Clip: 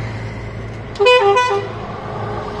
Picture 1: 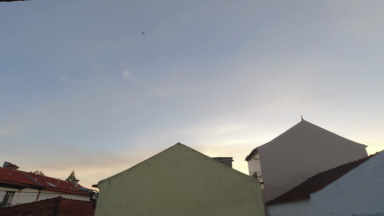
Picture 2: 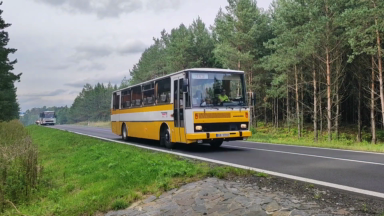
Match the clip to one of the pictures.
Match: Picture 2